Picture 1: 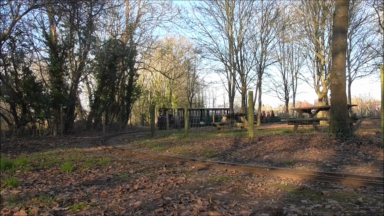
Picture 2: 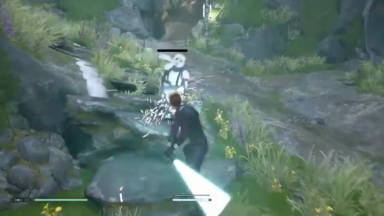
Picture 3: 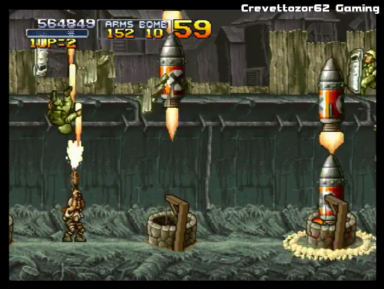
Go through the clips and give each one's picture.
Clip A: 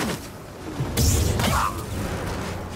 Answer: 2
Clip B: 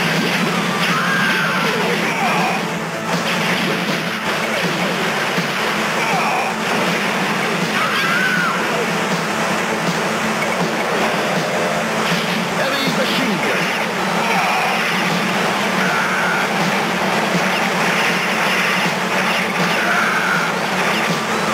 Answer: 3